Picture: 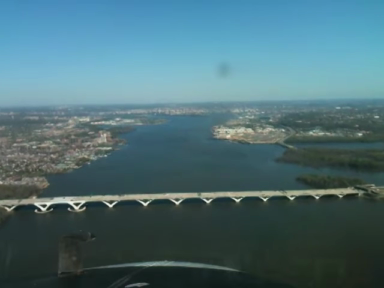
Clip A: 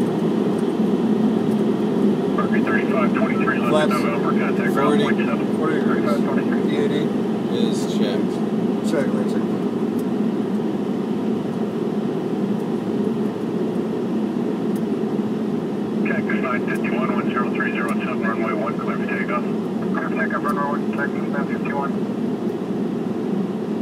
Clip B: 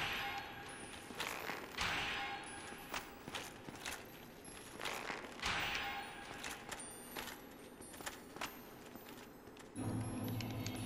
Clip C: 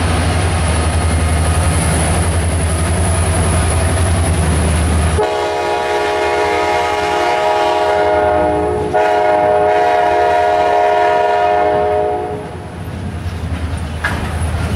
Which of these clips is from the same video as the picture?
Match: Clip A